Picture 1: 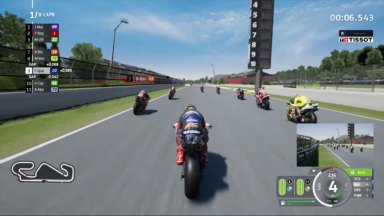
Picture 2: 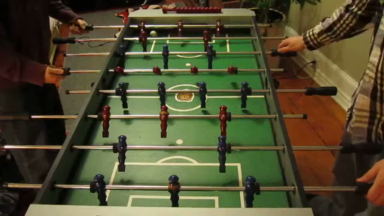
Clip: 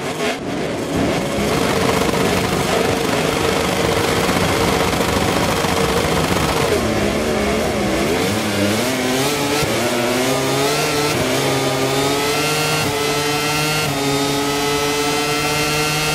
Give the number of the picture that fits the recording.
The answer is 1